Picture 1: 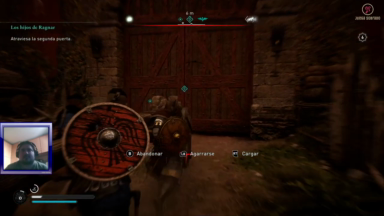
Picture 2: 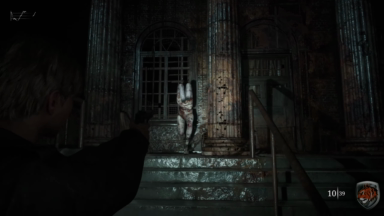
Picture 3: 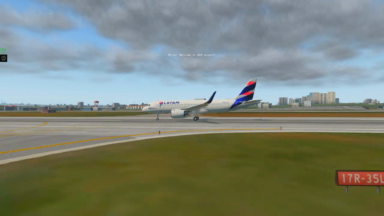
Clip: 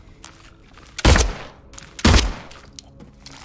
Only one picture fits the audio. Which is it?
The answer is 2